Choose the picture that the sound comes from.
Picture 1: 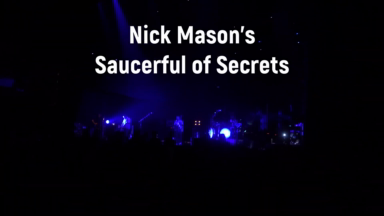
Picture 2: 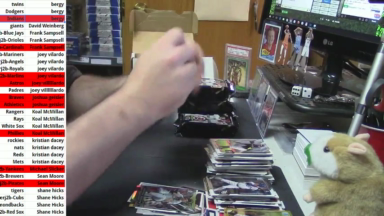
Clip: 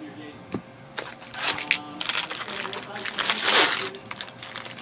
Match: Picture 2